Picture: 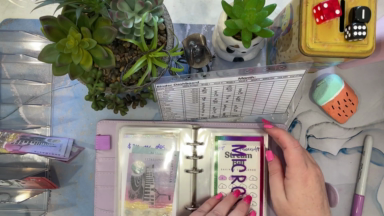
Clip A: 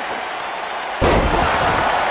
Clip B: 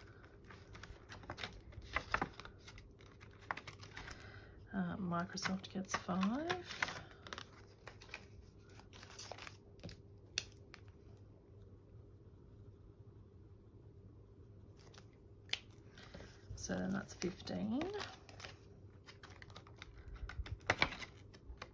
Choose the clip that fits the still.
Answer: B